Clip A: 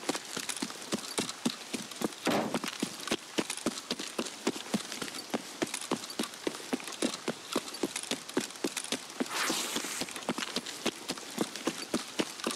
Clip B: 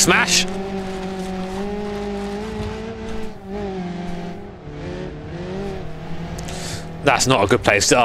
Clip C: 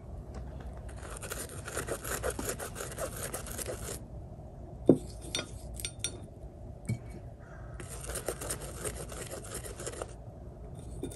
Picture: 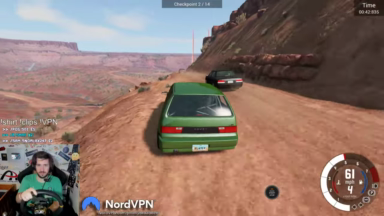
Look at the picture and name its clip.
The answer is B